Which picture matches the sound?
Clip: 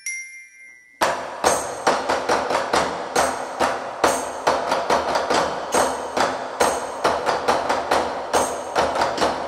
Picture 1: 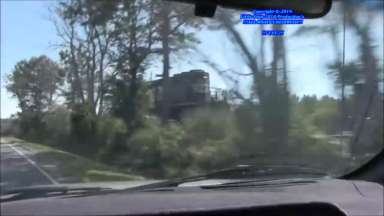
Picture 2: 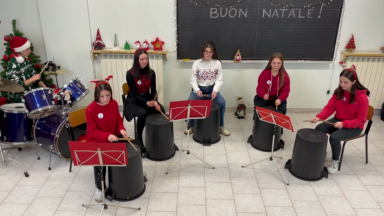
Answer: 2